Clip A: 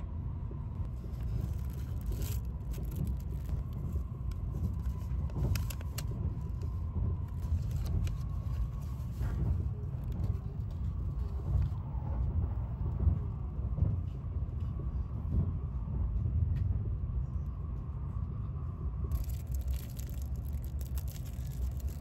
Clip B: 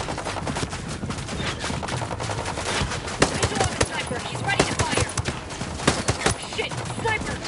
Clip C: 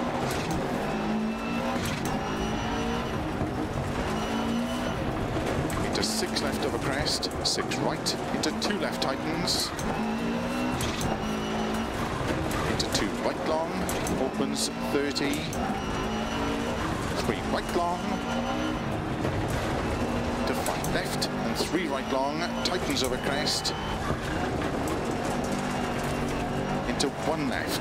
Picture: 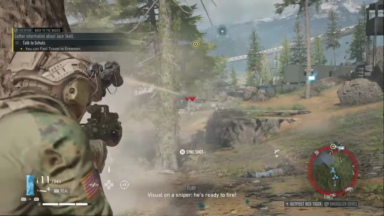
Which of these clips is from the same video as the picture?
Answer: B